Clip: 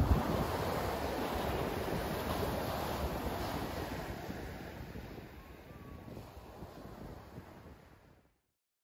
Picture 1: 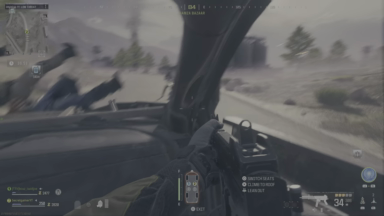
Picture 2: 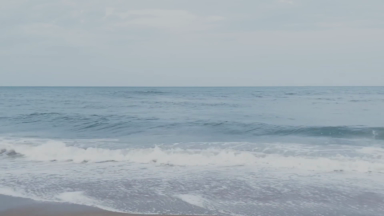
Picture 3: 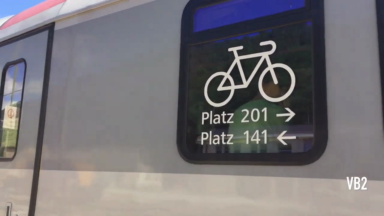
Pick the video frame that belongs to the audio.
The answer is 2